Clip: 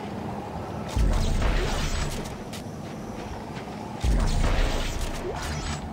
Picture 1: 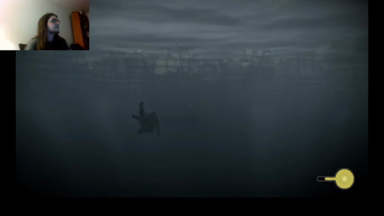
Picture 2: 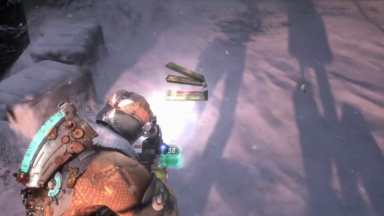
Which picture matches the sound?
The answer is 2